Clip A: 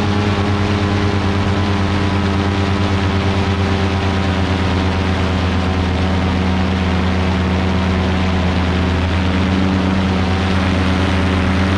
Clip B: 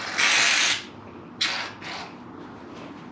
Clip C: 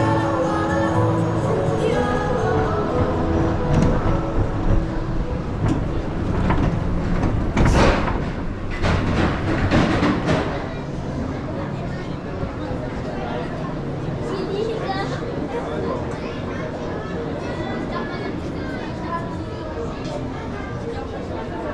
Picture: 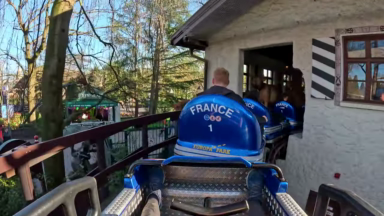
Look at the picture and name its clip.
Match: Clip C